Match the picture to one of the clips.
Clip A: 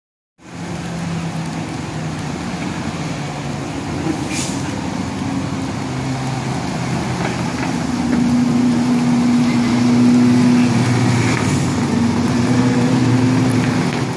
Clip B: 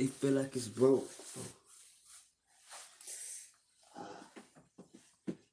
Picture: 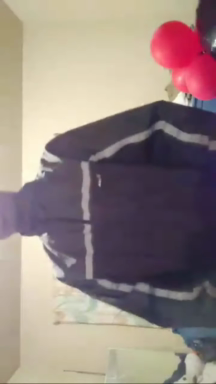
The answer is B